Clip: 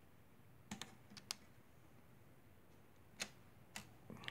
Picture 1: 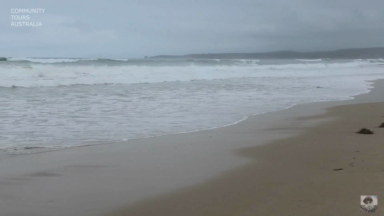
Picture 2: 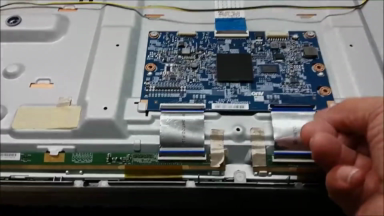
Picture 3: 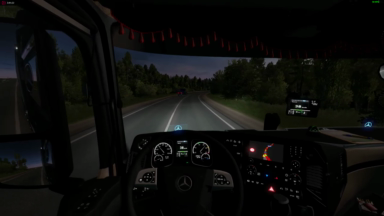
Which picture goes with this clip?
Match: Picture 2